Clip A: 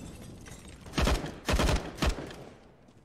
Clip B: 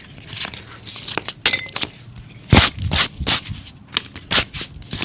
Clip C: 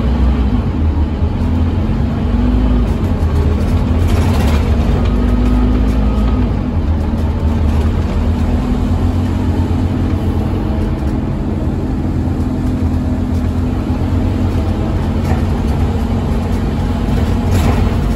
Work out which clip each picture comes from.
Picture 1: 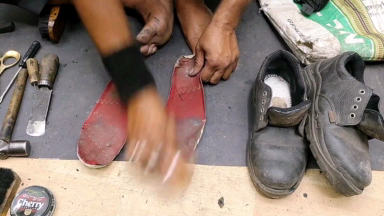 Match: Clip B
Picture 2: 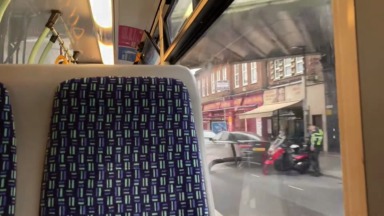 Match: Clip C